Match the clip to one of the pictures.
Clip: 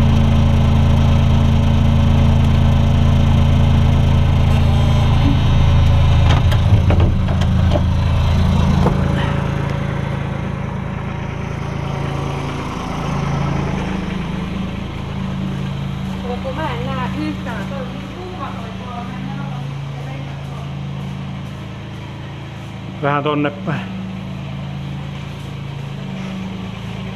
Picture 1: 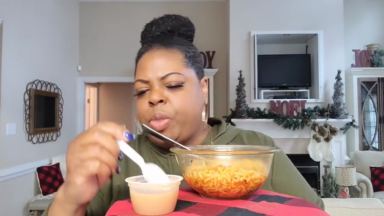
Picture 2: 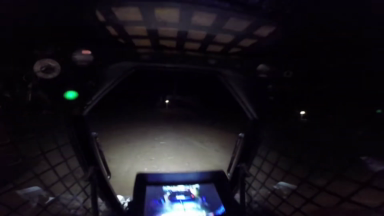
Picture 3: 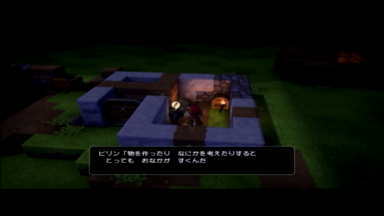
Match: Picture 2